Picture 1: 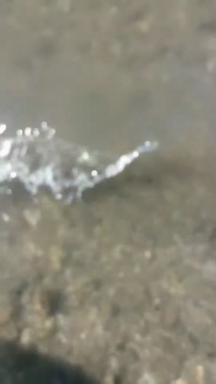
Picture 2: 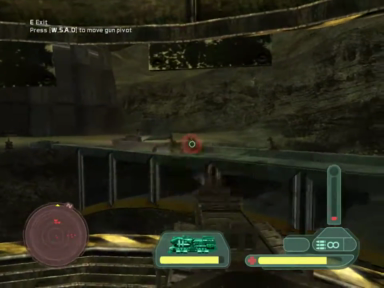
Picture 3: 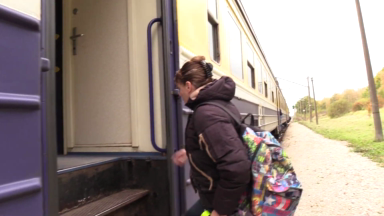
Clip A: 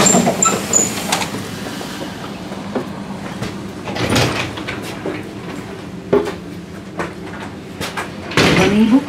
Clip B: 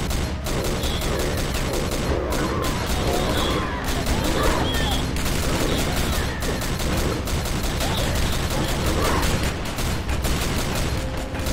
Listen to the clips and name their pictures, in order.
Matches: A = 3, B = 2